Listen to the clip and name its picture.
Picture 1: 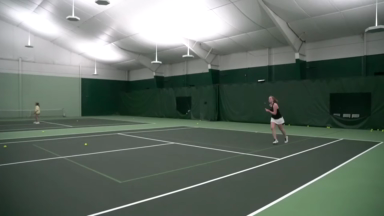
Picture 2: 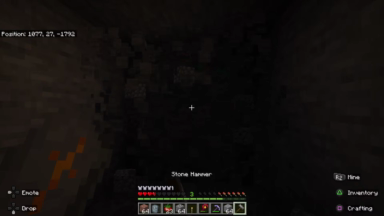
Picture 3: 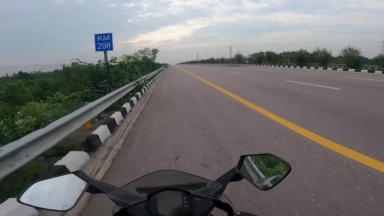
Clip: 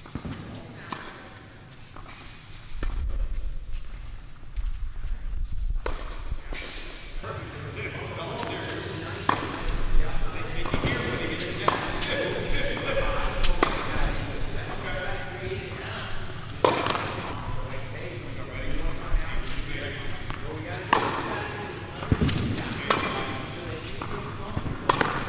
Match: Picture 1